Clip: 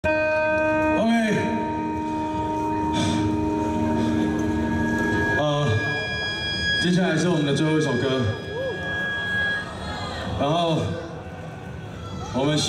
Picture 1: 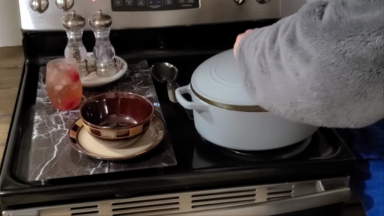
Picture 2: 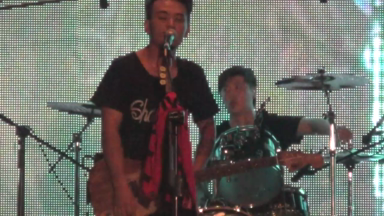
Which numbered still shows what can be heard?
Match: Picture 2